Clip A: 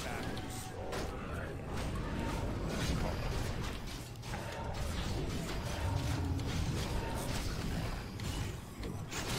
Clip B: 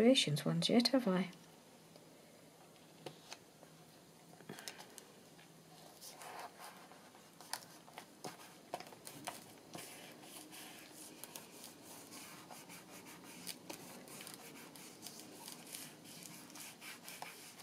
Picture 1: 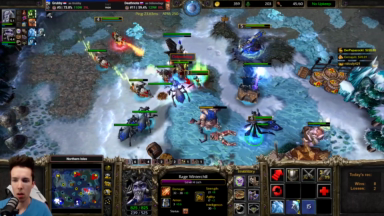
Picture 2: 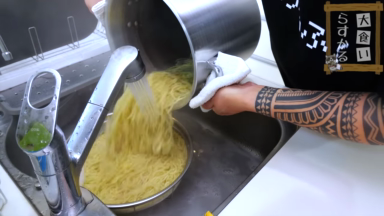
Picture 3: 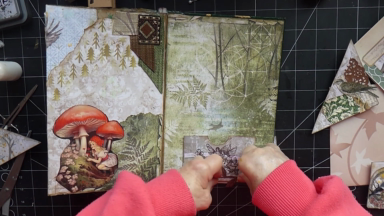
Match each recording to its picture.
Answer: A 1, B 3